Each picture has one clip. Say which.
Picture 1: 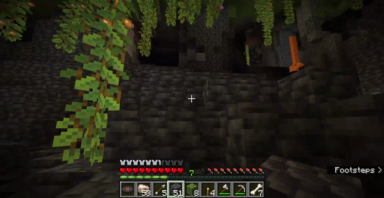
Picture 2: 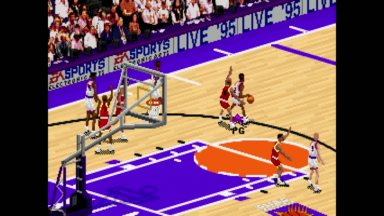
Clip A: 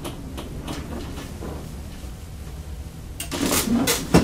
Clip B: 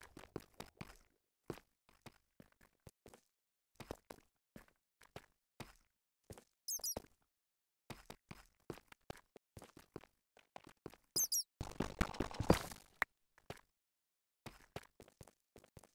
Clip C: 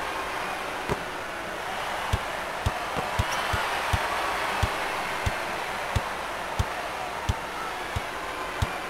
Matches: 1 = B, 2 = C